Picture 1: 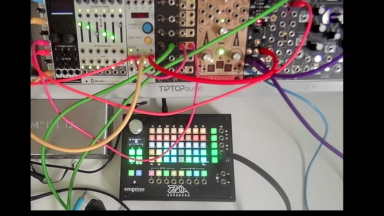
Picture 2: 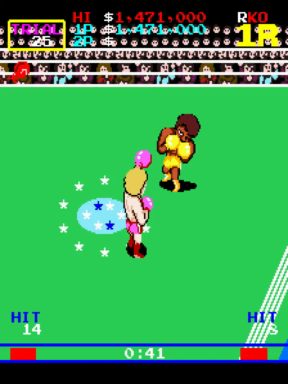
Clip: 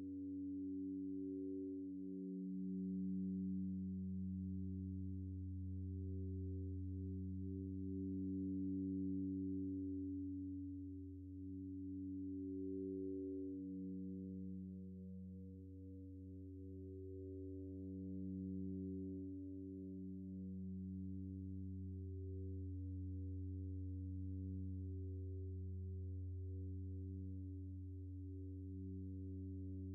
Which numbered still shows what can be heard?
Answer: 1